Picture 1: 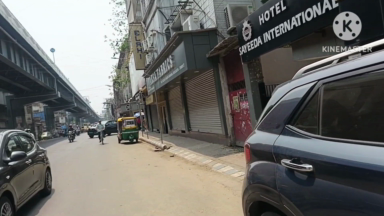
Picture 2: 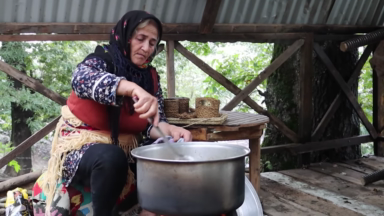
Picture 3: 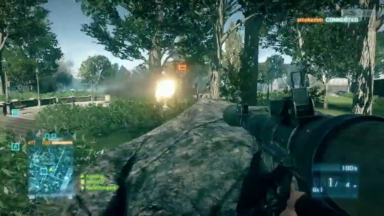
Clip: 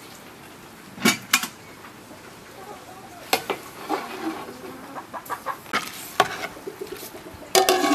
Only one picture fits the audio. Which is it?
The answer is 2